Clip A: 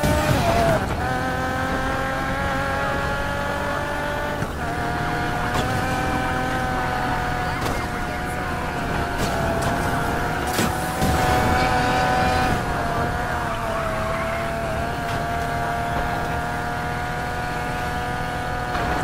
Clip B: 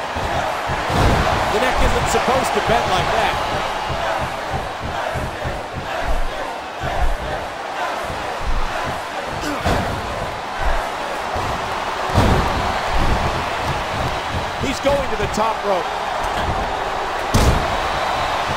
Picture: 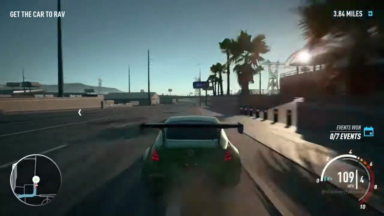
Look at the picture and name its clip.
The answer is A